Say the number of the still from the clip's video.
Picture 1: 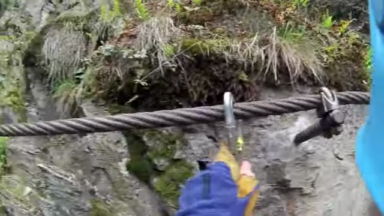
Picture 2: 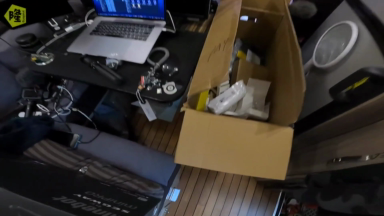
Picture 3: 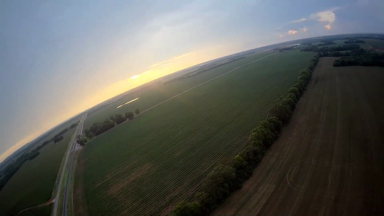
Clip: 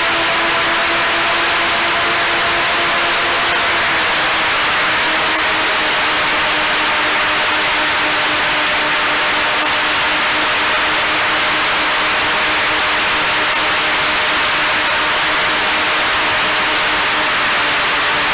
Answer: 3